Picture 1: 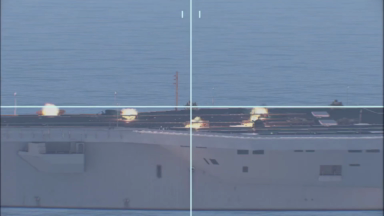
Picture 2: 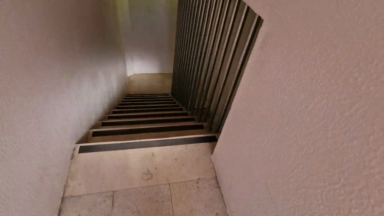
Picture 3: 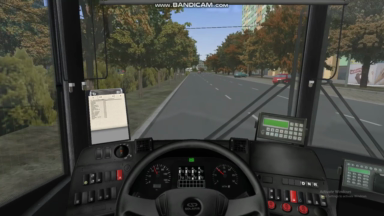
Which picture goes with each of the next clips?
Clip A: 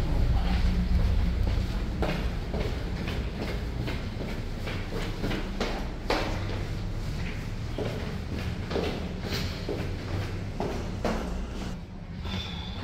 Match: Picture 2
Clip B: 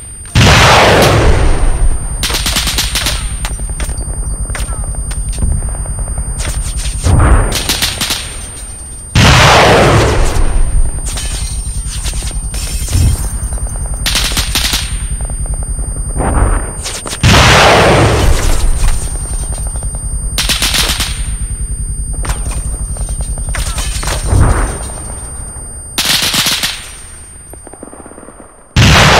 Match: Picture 1